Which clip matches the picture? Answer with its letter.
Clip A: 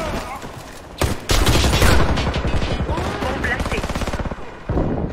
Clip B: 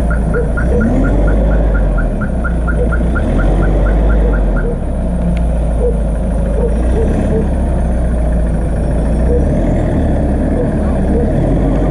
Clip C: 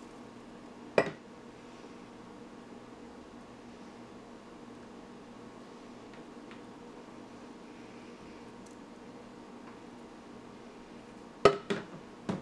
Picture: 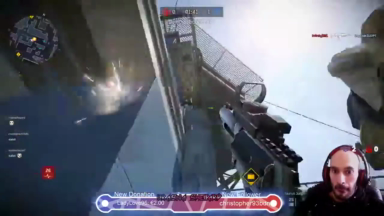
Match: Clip A